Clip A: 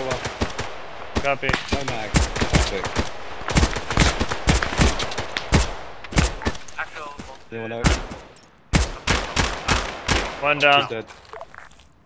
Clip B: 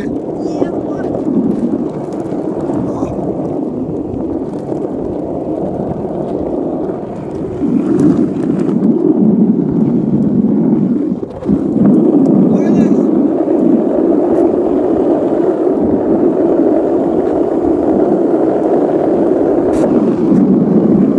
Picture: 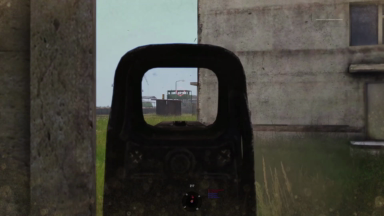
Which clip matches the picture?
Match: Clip A